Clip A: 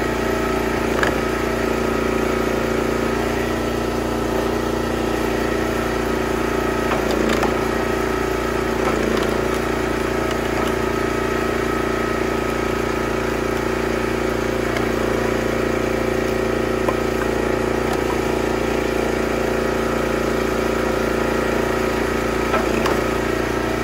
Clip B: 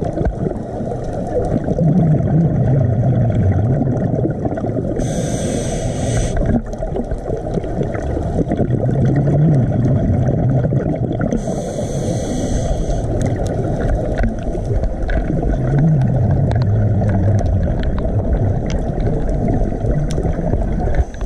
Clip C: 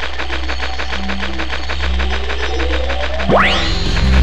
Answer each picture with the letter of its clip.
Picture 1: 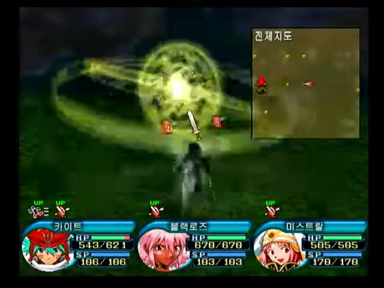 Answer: C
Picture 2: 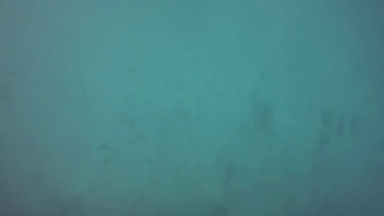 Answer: B